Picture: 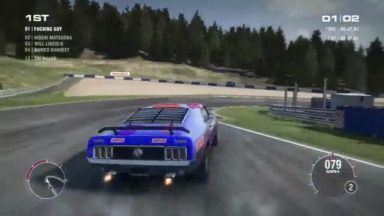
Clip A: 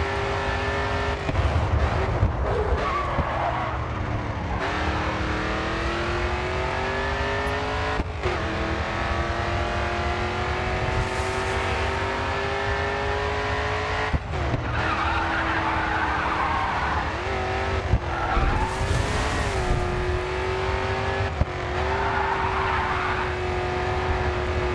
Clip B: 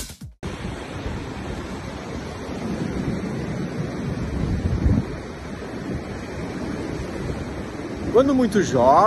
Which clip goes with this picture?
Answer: A